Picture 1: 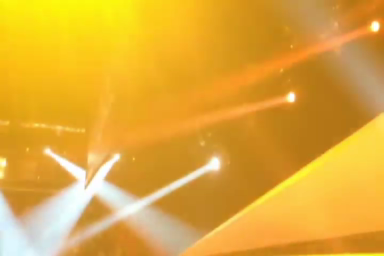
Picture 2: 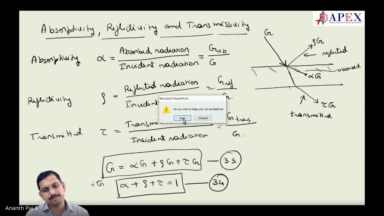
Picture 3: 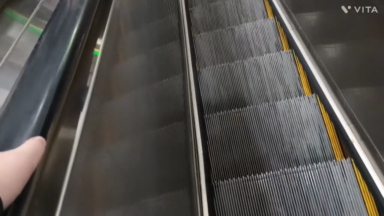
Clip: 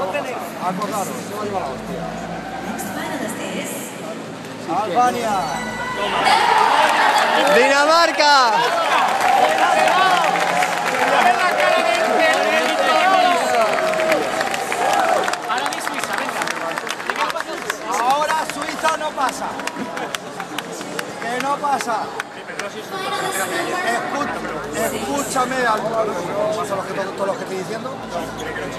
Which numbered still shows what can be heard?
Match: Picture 1